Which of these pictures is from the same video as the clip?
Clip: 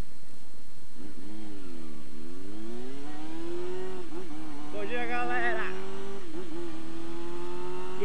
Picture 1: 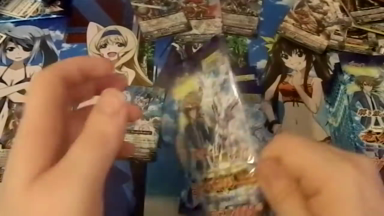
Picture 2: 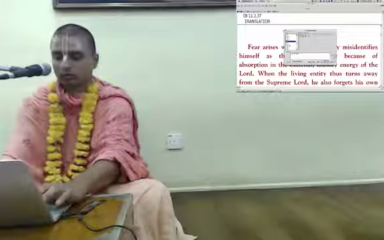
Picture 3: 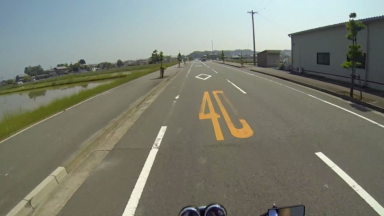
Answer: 3